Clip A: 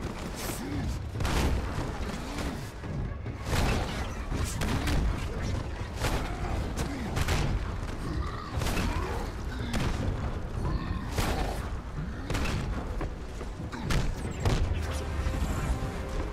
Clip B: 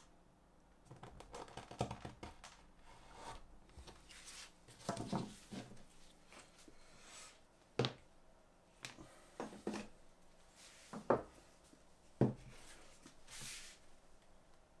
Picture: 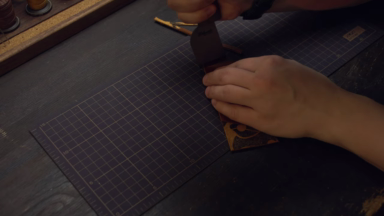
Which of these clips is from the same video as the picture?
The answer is B